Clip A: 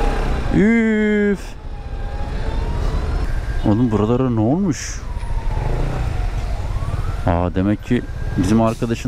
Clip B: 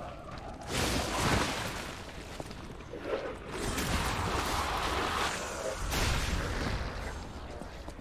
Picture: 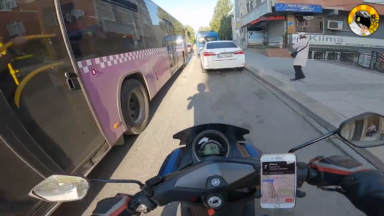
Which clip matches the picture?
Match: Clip A